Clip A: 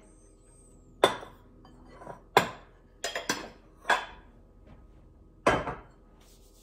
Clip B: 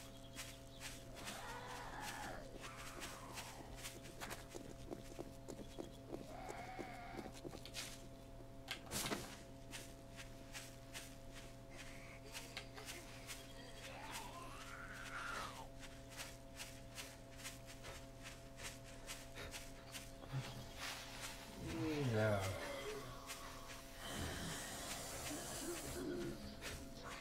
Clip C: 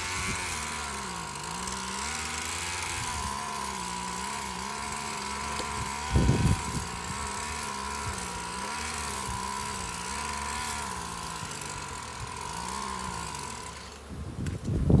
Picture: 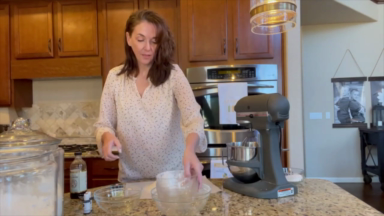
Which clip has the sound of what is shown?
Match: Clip A